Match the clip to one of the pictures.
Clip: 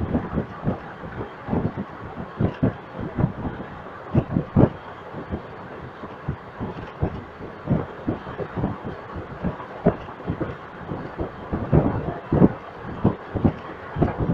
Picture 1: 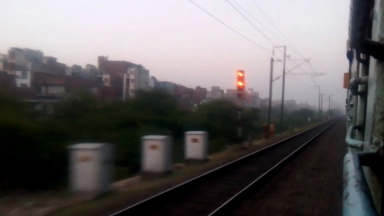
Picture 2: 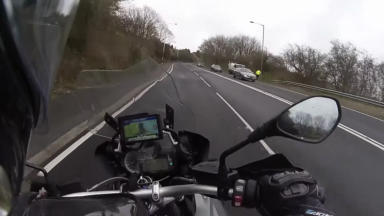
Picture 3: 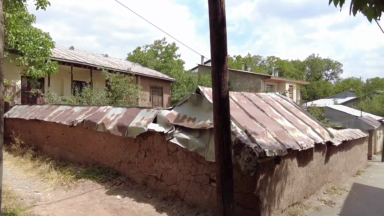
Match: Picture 1